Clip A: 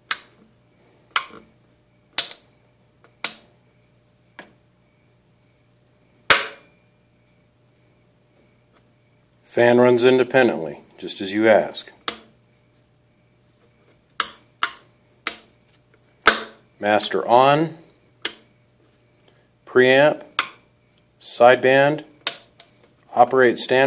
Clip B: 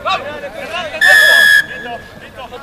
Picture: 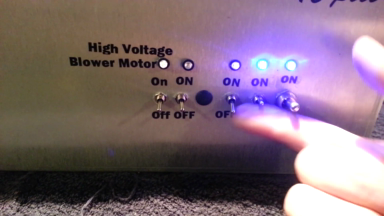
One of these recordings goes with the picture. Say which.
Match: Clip A